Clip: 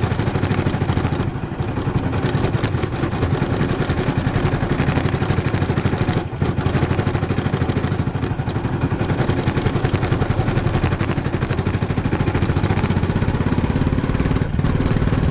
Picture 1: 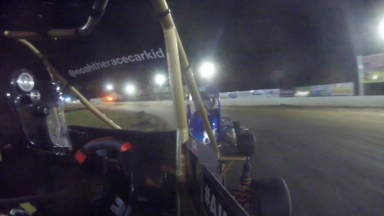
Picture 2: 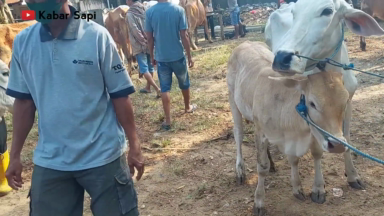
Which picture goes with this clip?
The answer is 1